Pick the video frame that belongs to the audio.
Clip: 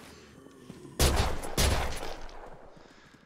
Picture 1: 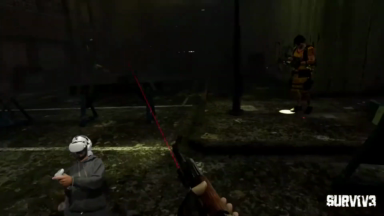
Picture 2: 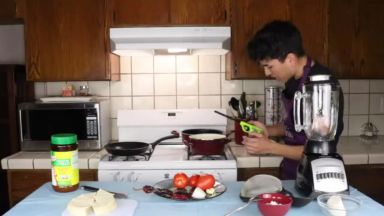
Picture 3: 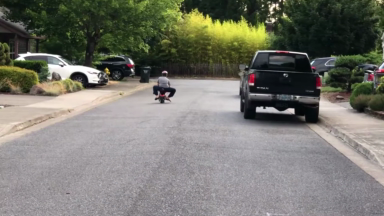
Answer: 1